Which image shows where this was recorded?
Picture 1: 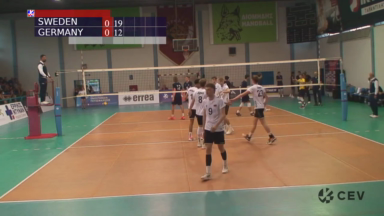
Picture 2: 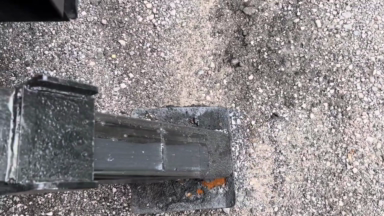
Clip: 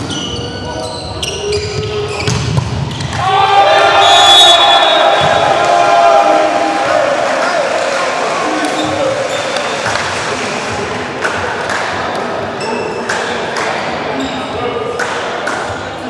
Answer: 1